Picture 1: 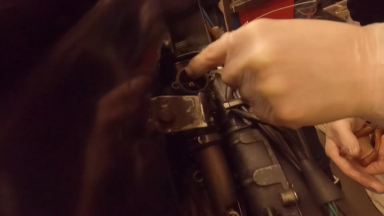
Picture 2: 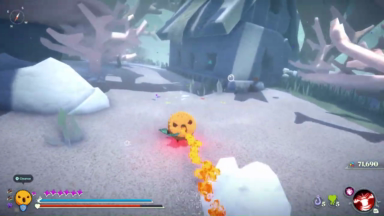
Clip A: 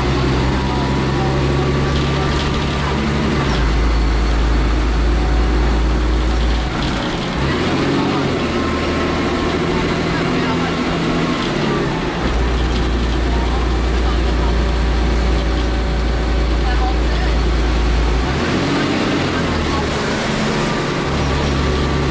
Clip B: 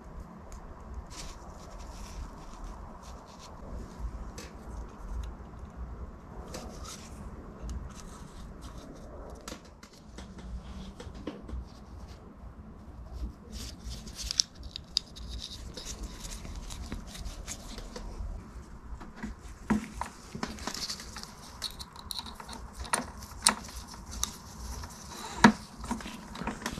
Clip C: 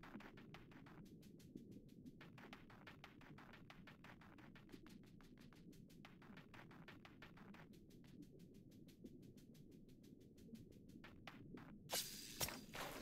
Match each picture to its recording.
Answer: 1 B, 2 C